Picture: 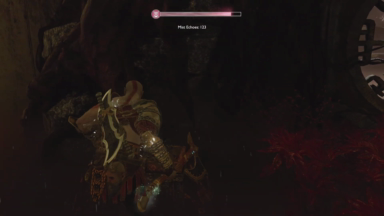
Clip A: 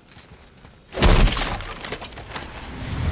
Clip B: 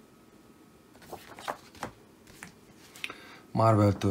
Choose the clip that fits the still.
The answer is A